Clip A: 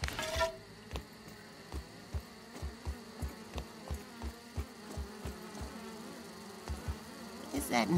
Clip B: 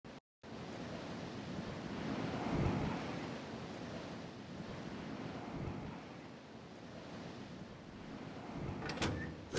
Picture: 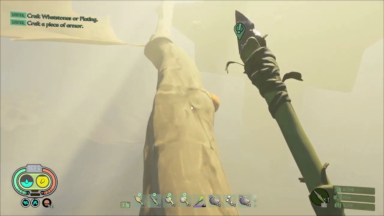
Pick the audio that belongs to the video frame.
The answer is A